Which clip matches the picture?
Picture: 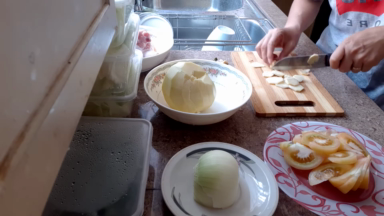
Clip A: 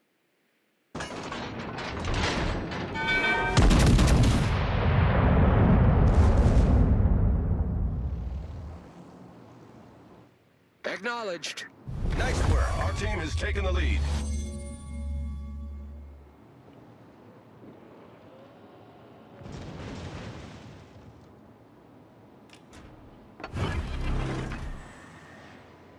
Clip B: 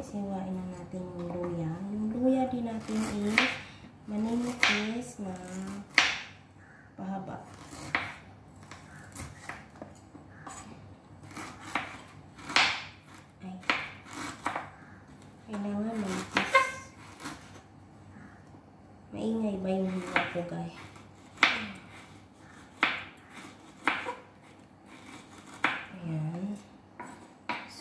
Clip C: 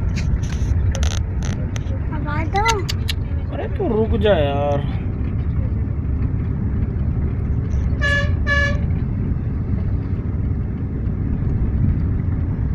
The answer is B